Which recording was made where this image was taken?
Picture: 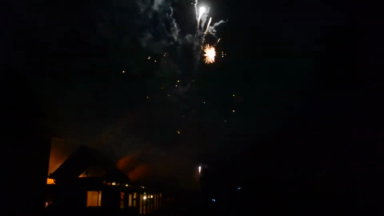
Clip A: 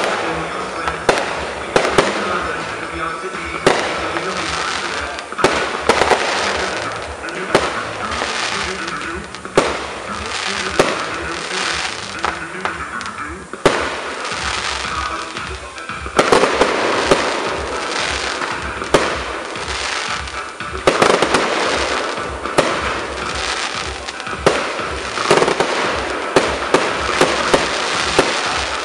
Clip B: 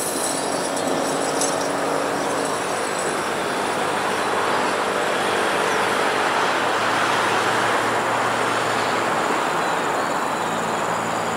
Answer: A